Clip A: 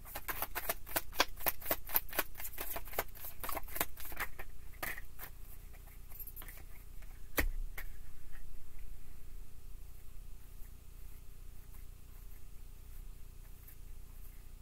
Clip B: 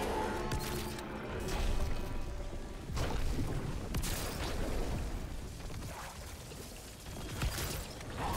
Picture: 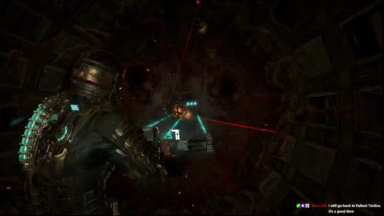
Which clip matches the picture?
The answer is B